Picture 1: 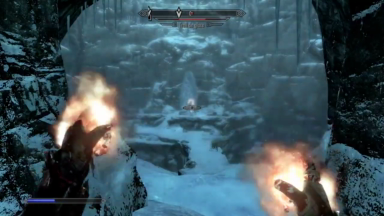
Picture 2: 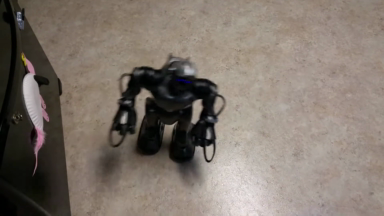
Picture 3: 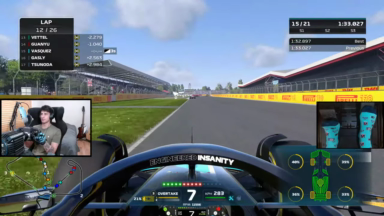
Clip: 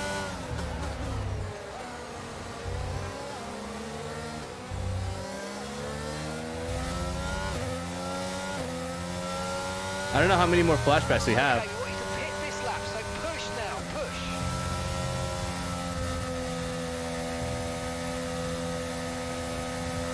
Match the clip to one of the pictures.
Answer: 3